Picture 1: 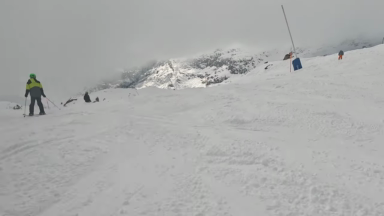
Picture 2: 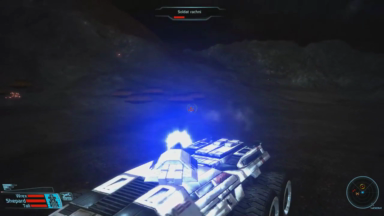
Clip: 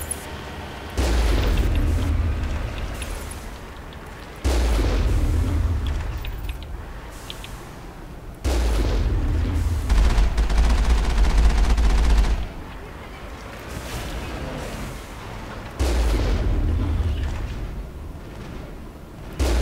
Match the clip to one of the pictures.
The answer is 2